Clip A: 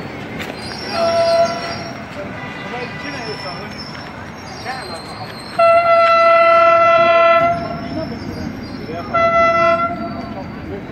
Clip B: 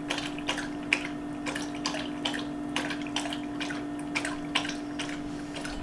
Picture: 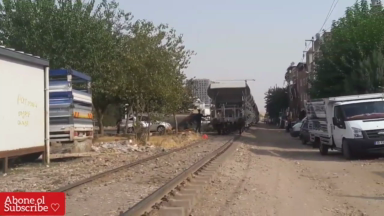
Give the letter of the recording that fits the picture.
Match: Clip A